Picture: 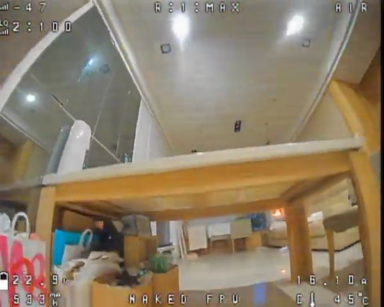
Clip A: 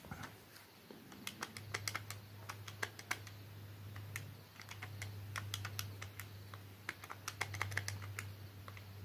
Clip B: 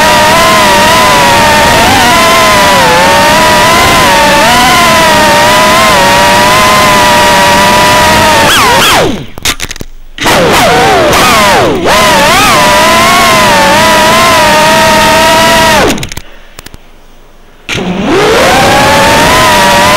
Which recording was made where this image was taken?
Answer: B